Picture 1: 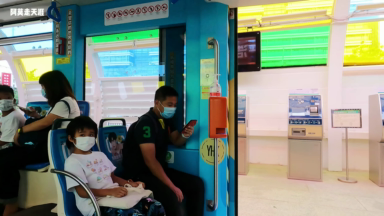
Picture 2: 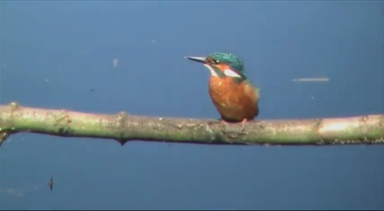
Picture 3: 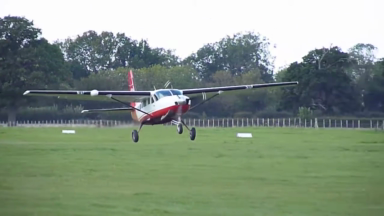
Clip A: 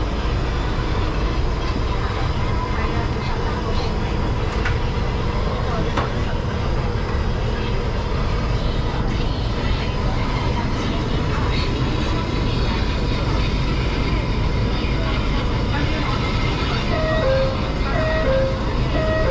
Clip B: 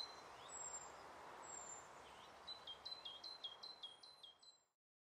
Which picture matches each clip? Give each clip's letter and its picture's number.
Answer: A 1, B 2